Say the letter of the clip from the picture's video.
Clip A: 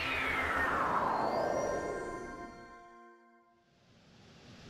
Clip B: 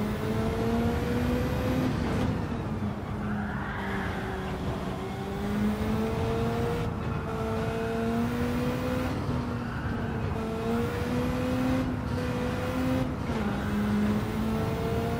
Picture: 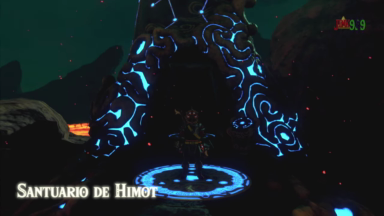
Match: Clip A